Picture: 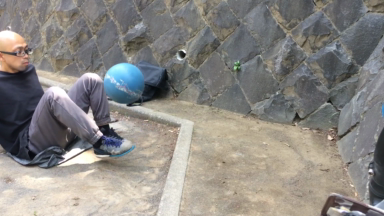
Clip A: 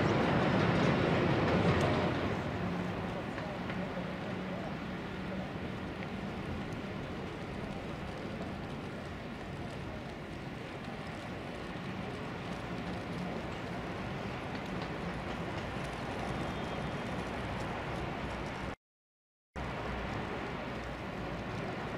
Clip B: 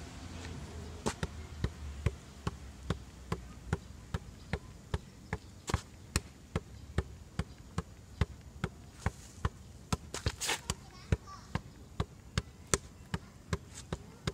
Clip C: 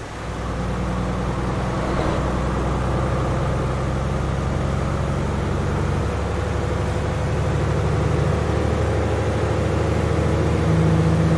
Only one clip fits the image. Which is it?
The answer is B